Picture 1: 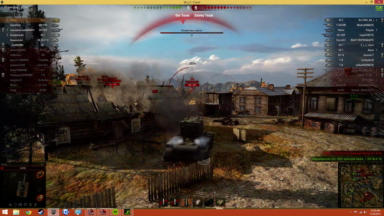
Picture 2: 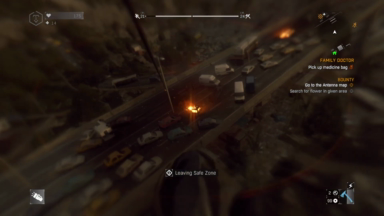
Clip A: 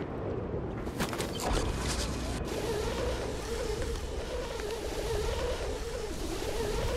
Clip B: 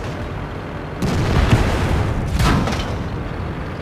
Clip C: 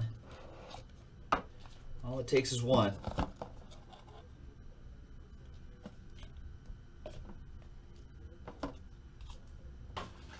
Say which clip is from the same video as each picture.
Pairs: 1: B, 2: A